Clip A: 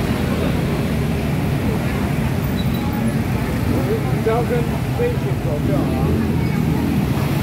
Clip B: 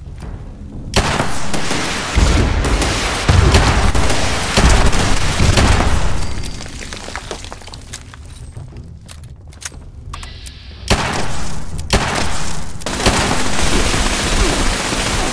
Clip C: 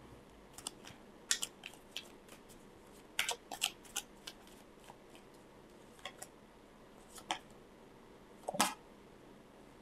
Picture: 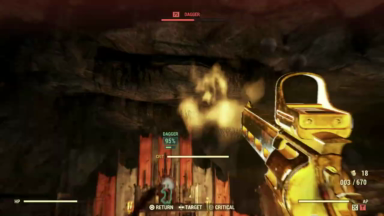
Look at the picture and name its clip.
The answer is B